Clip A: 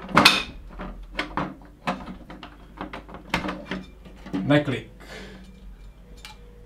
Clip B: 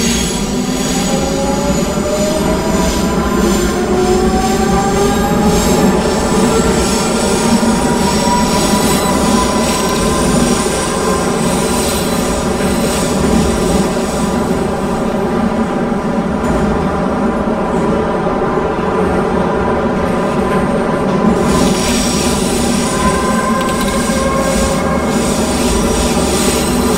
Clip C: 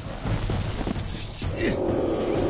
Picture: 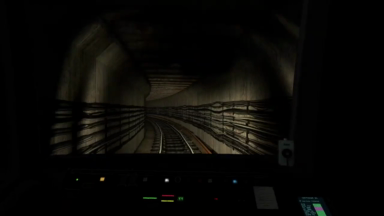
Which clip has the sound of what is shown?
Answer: B